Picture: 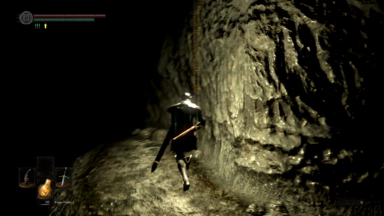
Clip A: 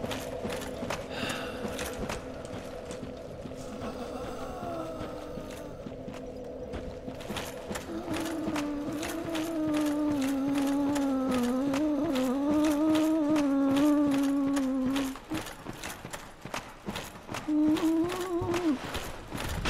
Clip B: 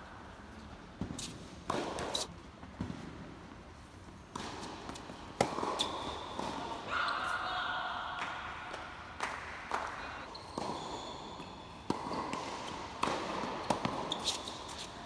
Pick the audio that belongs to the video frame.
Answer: A